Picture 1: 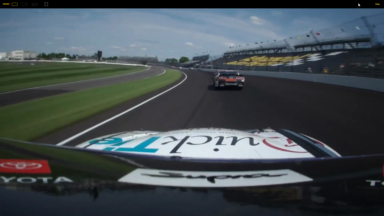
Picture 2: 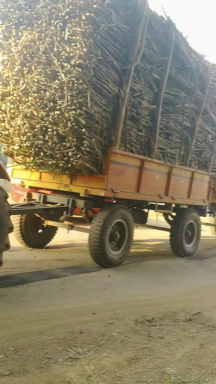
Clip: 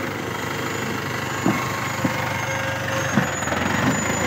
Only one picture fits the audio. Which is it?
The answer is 2